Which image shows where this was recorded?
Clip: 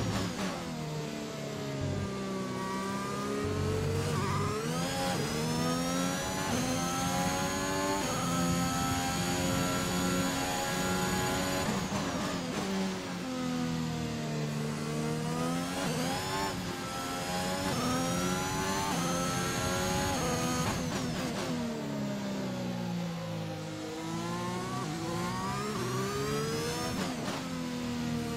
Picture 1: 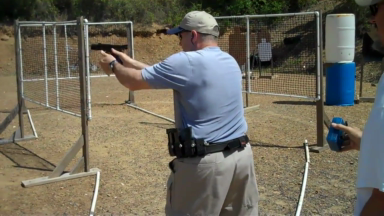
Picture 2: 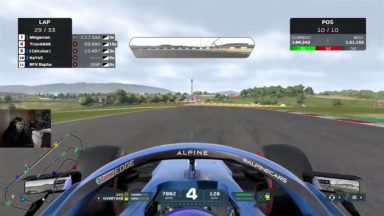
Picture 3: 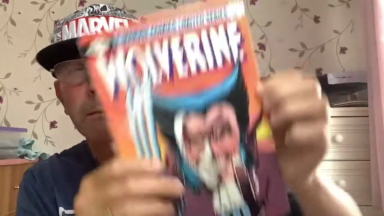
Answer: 2